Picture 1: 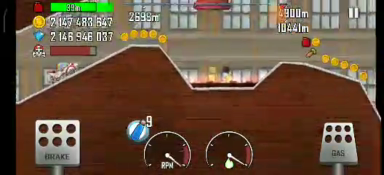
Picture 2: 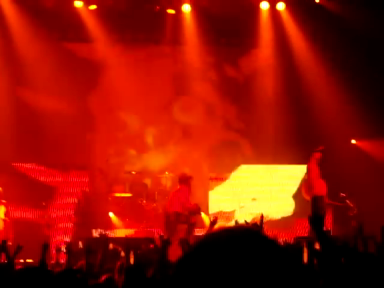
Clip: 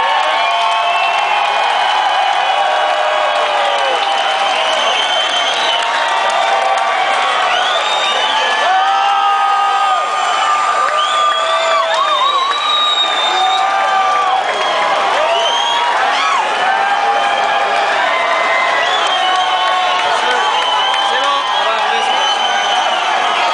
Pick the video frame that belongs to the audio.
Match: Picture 2